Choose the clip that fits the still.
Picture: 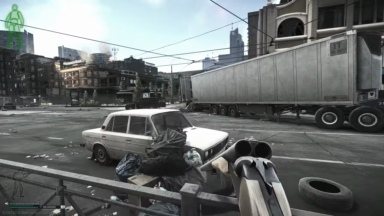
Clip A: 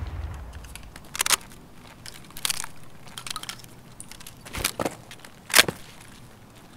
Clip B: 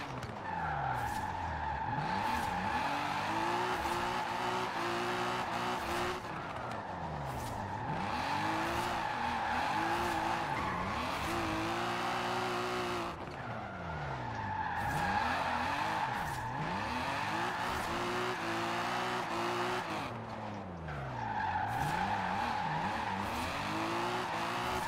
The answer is A